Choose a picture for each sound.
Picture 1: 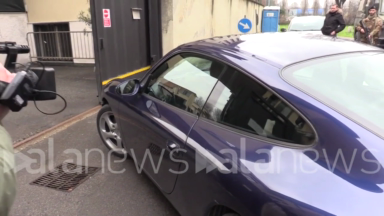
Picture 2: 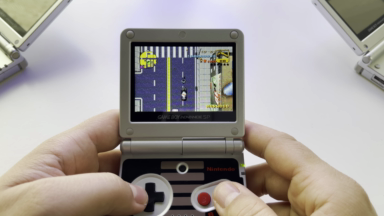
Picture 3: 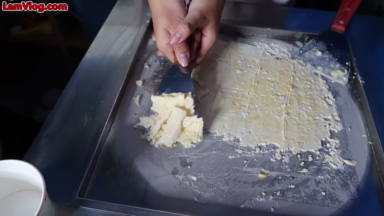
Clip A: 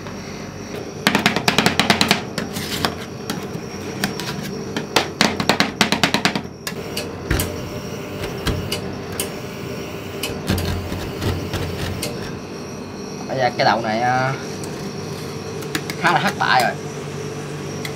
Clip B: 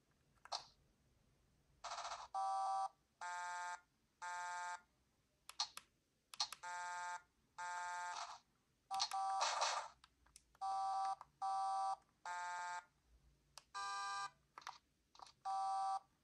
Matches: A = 3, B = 2